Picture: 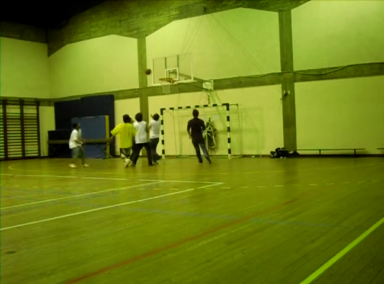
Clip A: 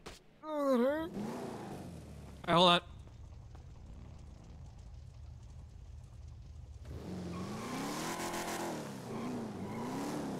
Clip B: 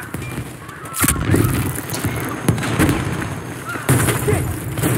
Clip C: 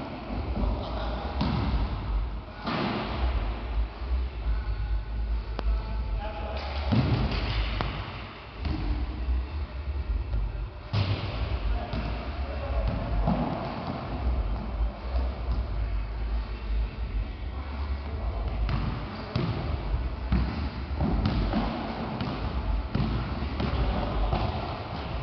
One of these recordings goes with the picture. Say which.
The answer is C